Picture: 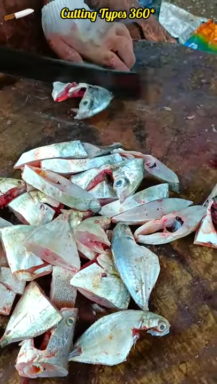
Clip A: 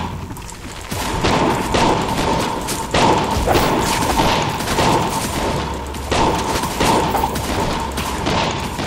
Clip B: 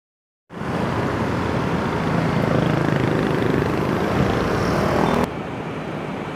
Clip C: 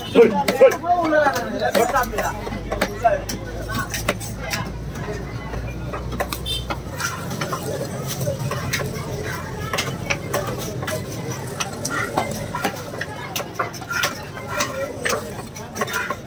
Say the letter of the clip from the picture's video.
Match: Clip C